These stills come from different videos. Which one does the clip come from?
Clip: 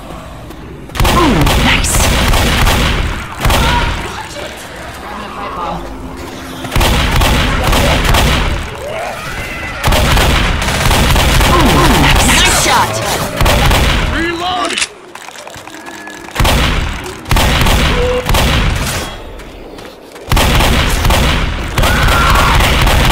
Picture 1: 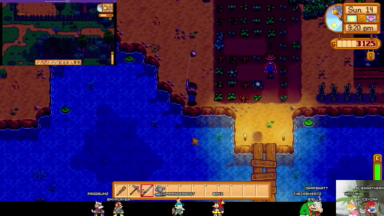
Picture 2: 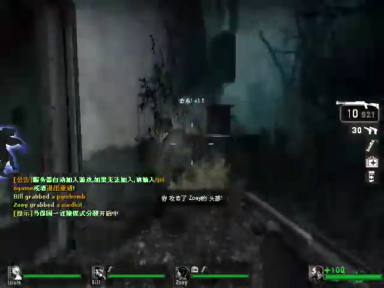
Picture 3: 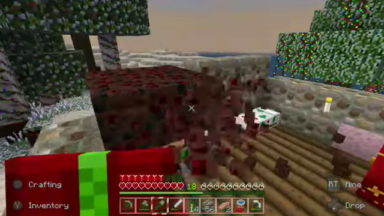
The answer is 2